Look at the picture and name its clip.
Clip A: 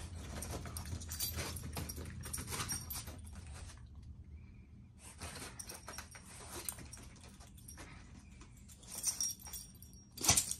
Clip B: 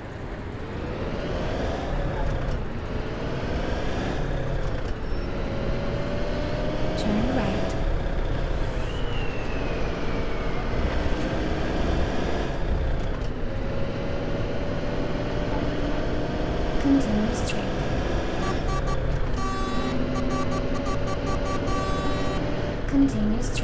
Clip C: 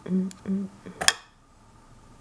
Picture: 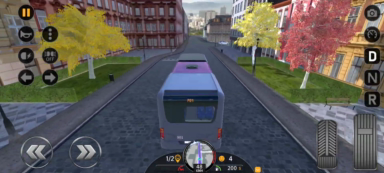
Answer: B